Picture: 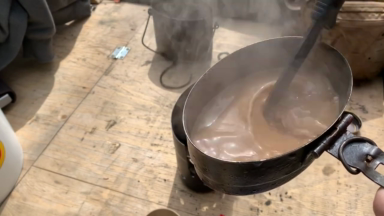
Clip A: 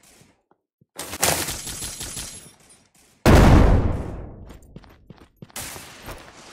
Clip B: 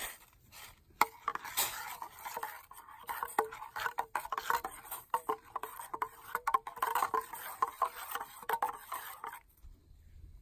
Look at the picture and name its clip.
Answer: B